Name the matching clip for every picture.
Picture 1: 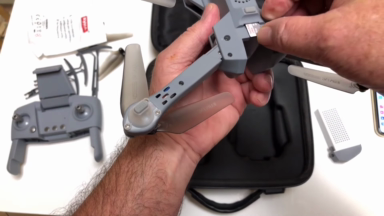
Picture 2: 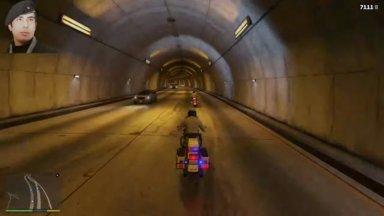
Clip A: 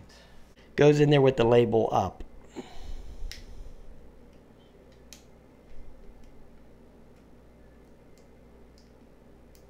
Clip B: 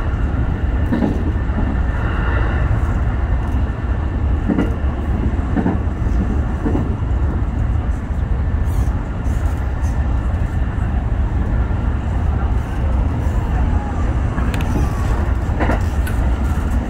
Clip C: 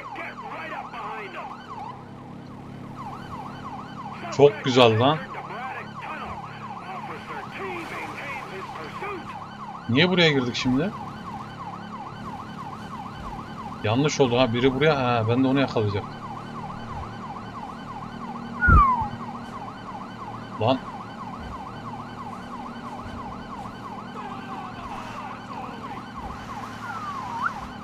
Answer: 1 A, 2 C